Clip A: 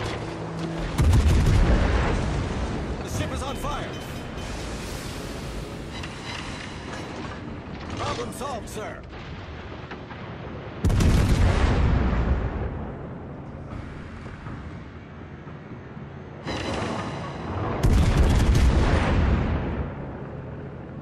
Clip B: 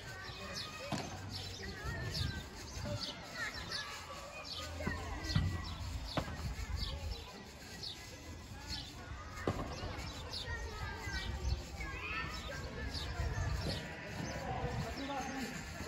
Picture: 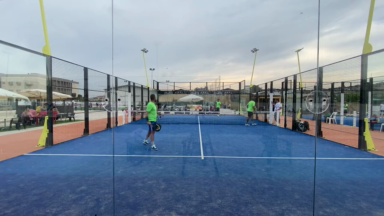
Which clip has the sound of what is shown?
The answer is B